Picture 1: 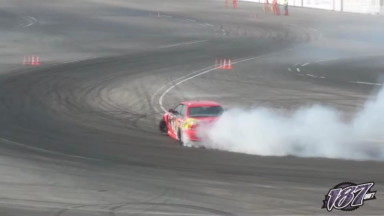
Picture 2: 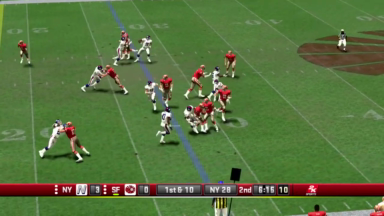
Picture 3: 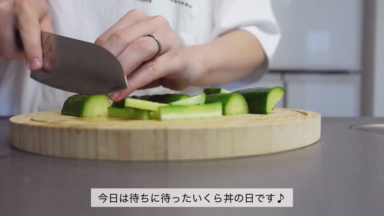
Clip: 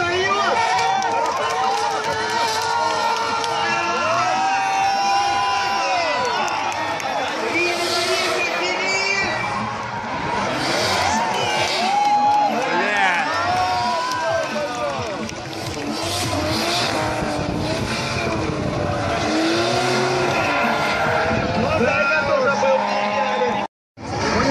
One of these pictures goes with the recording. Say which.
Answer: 1